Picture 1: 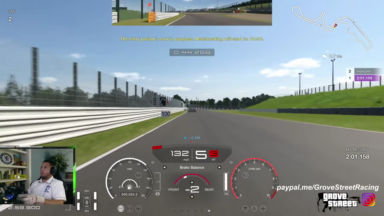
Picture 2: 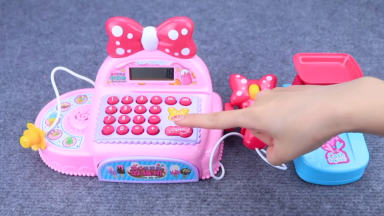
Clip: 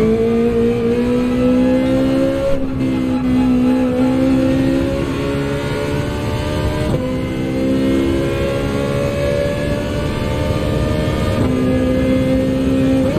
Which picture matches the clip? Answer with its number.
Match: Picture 1